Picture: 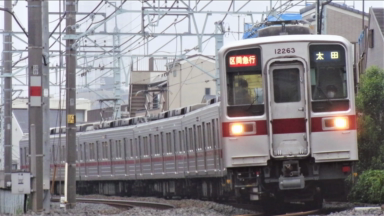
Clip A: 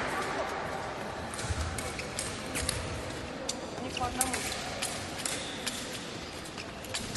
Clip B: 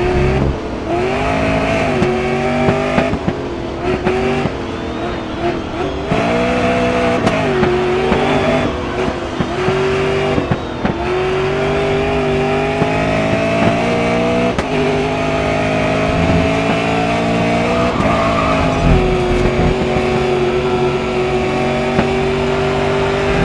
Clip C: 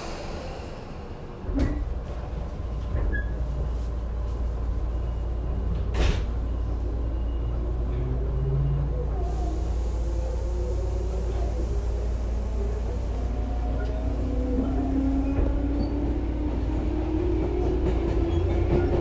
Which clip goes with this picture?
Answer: C